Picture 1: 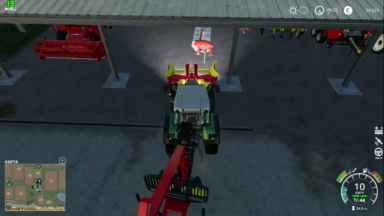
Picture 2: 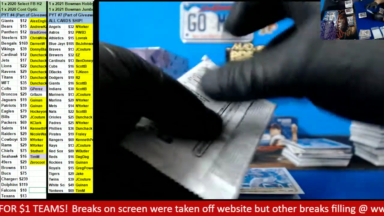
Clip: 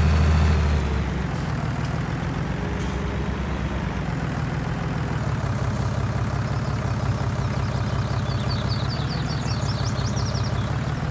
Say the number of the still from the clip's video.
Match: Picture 1